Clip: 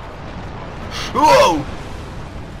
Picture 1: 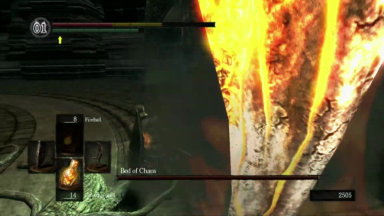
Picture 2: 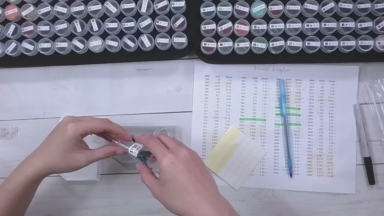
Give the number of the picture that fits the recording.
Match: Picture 1